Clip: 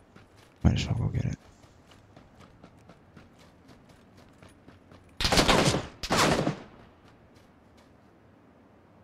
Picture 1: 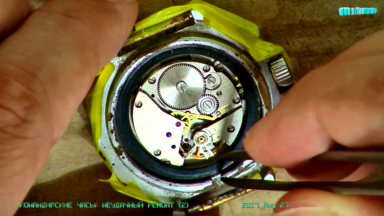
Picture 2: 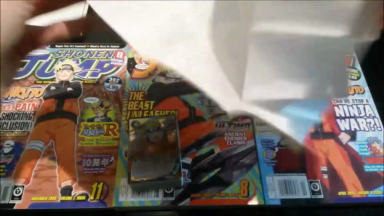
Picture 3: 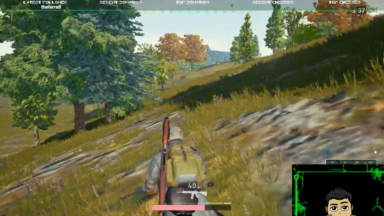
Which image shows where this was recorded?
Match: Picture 3